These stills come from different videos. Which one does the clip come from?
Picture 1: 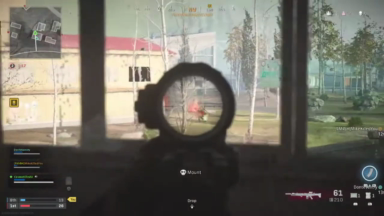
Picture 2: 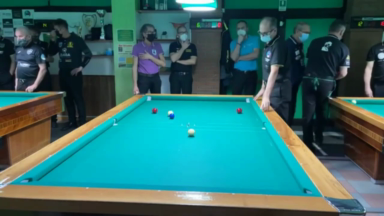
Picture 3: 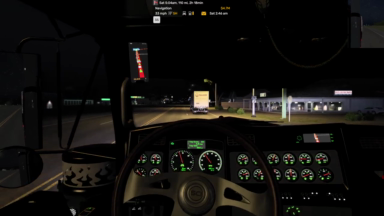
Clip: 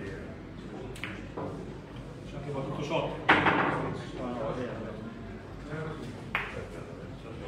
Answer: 2